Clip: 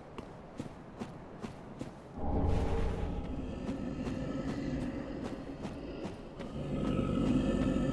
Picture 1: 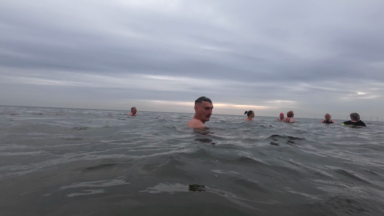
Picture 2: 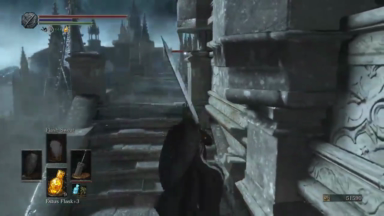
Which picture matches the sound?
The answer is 2